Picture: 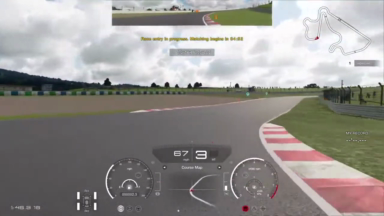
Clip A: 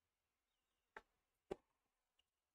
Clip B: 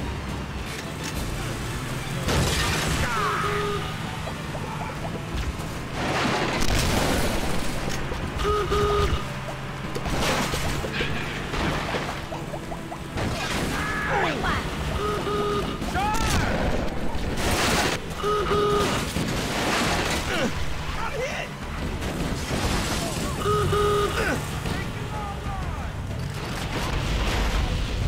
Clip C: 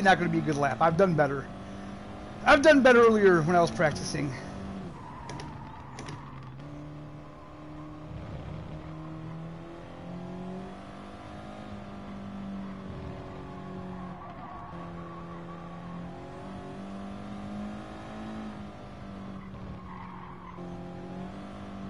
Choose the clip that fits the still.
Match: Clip C